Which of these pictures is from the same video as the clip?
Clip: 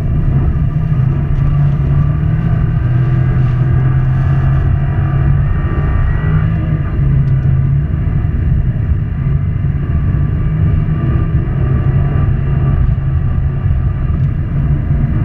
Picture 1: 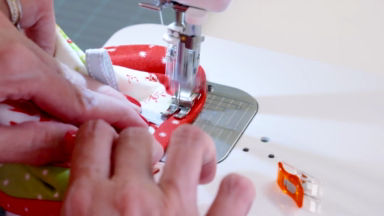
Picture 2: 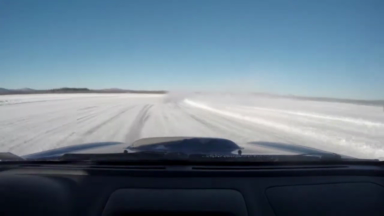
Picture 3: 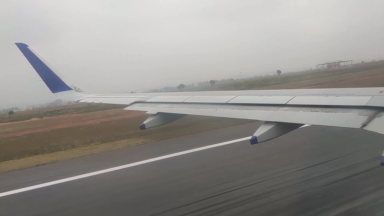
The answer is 2